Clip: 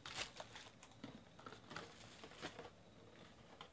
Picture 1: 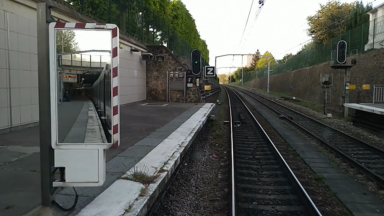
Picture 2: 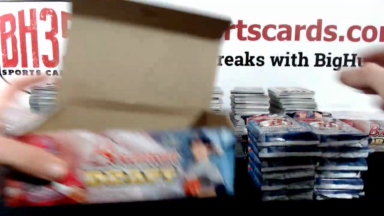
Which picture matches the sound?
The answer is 2